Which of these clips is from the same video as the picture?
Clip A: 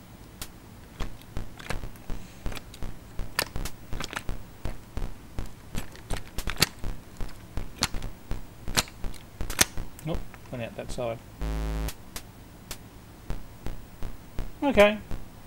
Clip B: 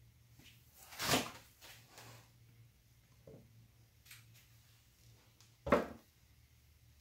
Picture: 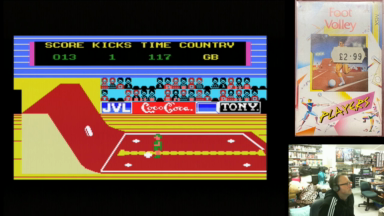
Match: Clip A